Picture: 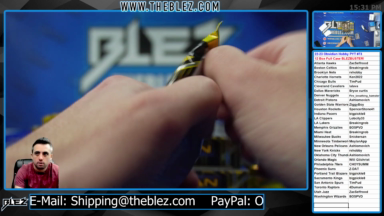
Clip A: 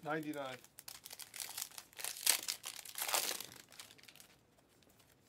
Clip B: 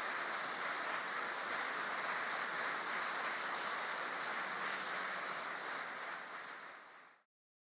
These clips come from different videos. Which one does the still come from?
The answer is A